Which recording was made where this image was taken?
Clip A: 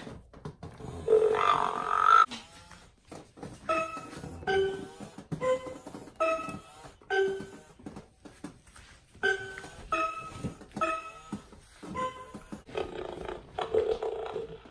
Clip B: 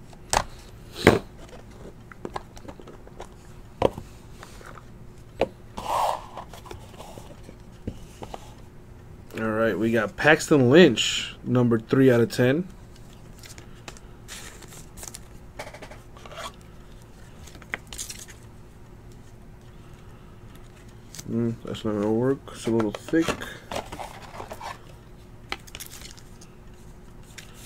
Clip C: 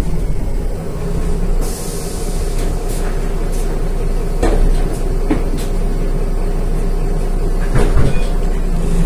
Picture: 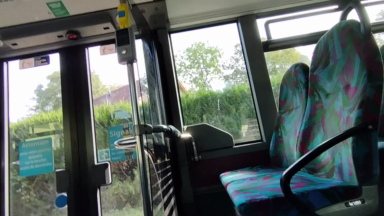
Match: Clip C